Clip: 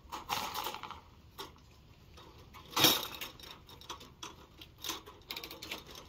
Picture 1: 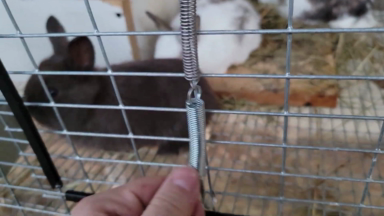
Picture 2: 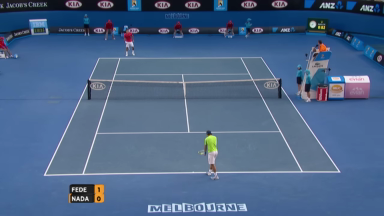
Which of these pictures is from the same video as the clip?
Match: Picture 1